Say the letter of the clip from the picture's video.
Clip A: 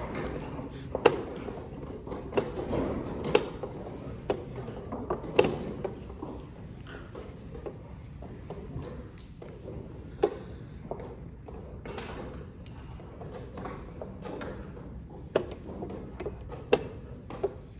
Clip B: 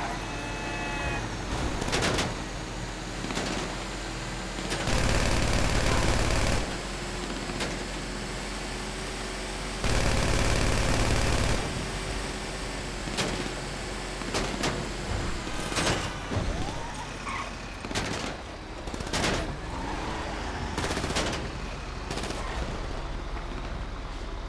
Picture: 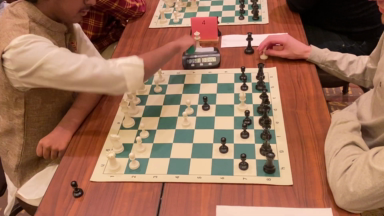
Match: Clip A